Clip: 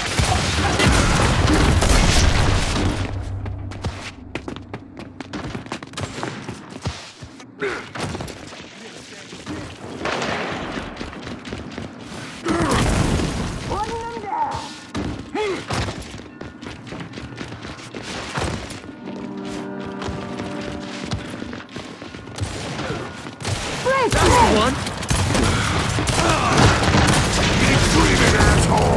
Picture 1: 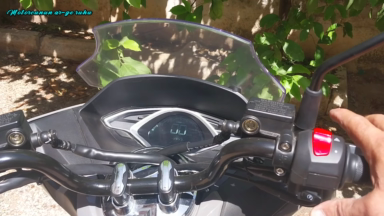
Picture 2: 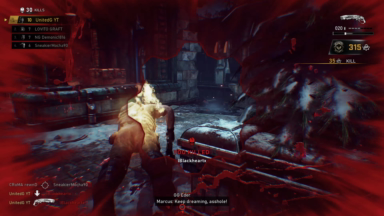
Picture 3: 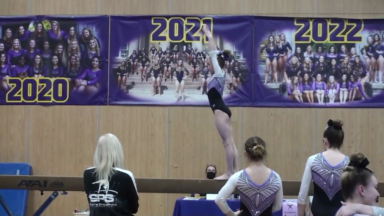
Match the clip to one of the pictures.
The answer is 2